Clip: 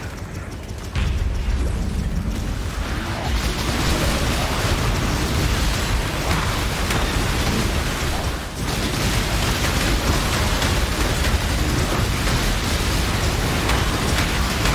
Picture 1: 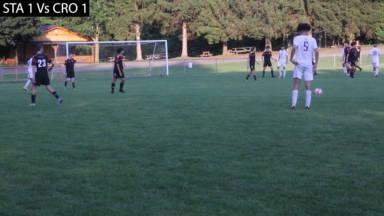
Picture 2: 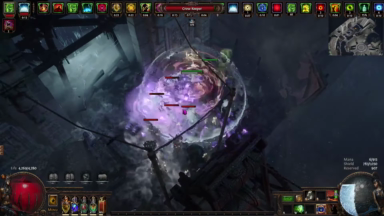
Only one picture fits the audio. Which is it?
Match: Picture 2